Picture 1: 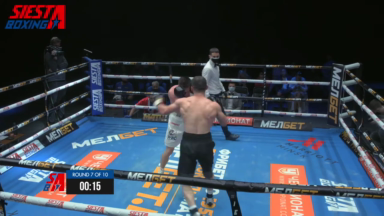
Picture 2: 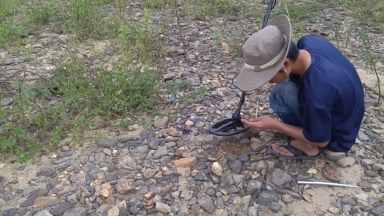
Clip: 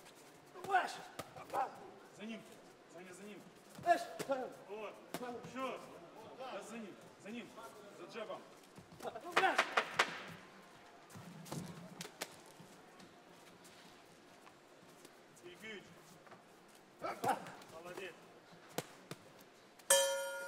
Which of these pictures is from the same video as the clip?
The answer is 1